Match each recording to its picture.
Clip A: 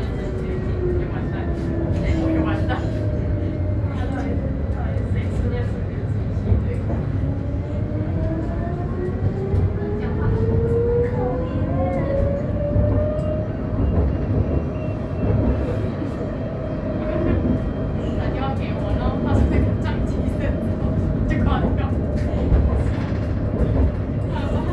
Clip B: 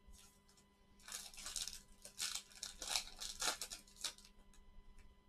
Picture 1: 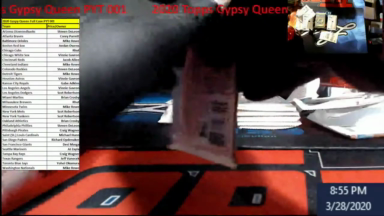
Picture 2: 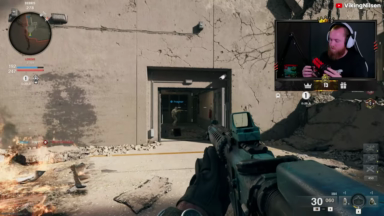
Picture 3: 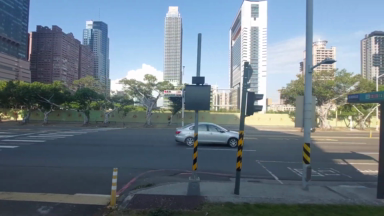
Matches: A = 3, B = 1